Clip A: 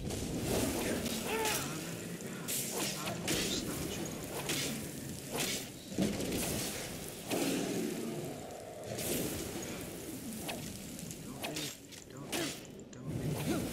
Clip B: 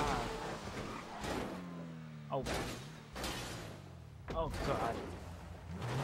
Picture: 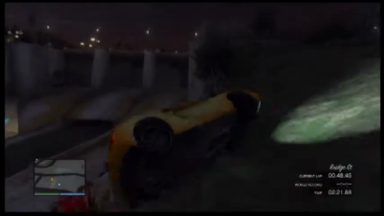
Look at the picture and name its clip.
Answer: B